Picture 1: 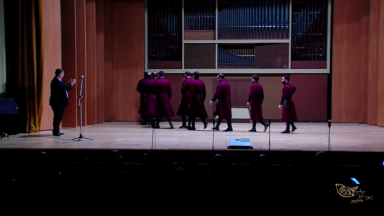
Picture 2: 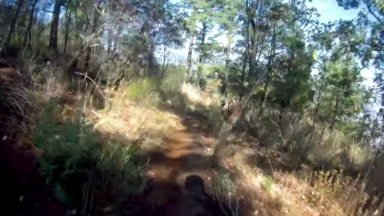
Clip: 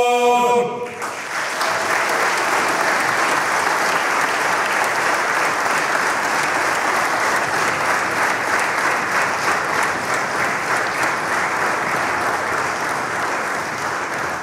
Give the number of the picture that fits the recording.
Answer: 1